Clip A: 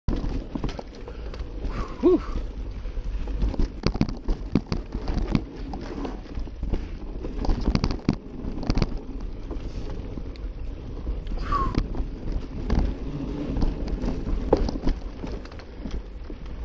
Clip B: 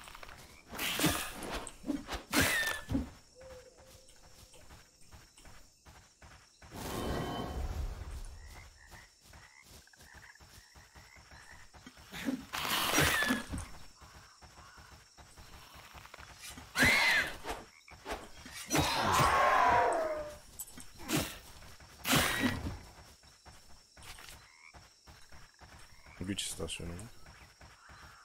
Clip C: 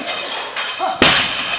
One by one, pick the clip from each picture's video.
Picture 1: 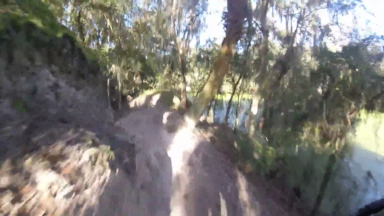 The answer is A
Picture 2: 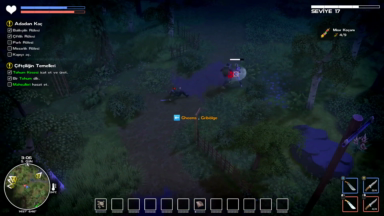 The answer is B